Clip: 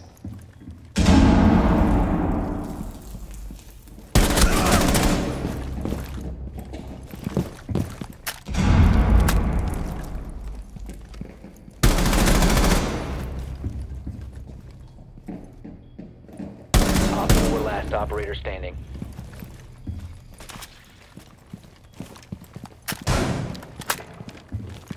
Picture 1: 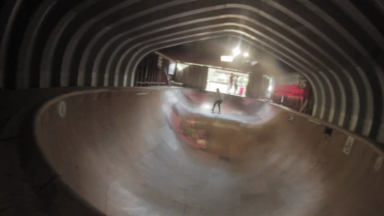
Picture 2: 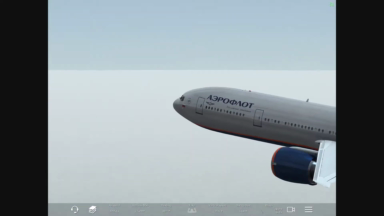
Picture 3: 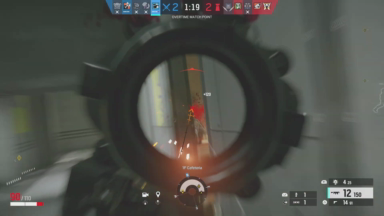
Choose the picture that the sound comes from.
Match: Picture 3